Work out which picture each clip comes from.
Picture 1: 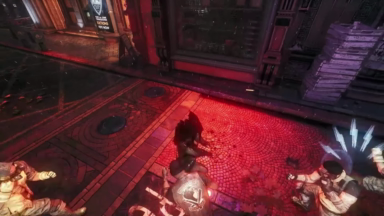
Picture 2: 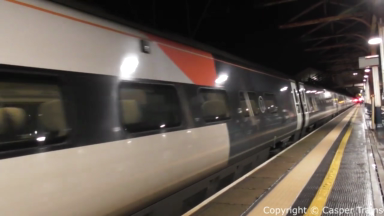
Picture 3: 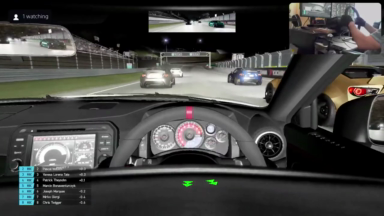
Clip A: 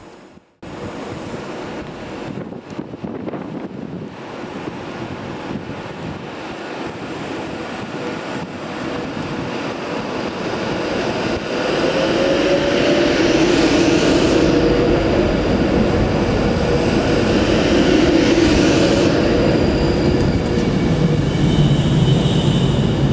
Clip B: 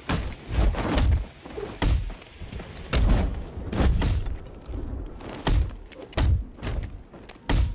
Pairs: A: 2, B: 1